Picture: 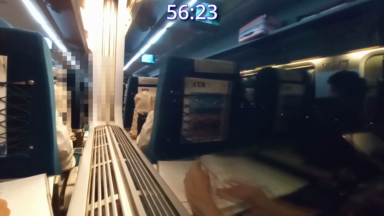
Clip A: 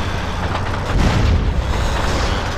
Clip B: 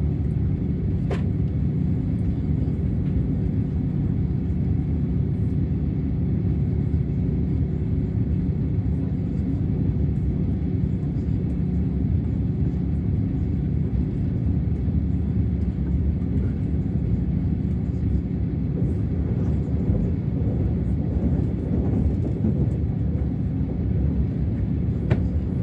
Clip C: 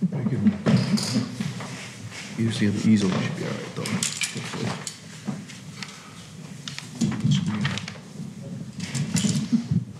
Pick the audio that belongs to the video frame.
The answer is B